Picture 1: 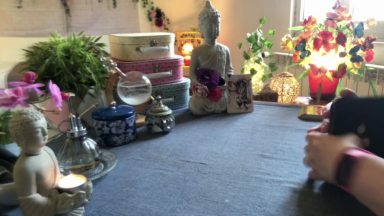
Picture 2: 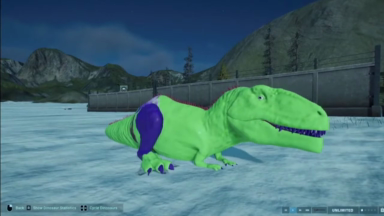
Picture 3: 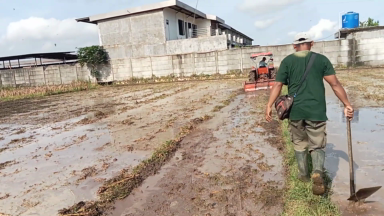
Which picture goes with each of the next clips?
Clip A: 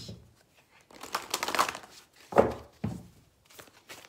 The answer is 1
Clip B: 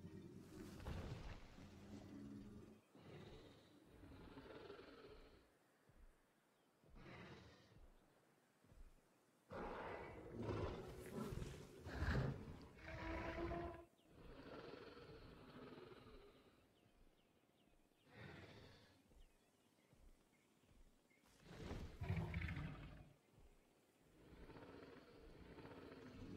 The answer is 2